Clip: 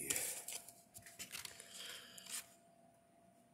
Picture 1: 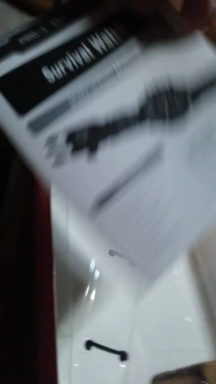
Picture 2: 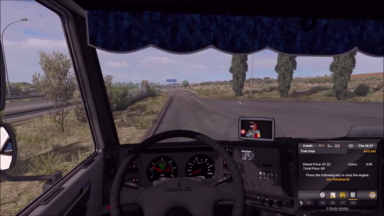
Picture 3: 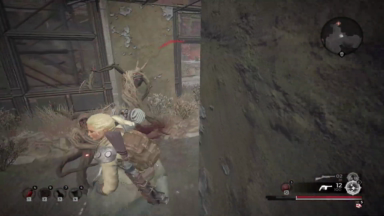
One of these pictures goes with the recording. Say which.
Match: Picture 1